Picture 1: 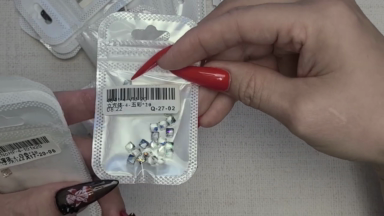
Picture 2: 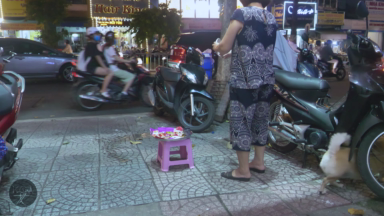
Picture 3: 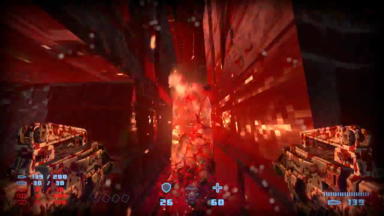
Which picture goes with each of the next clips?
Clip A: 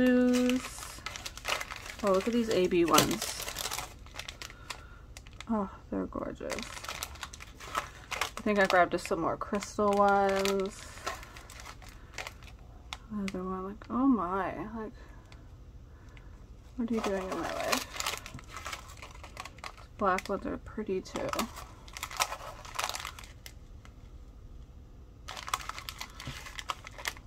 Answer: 1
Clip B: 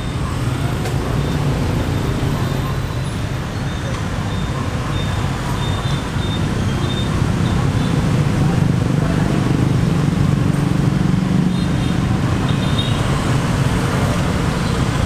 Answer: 2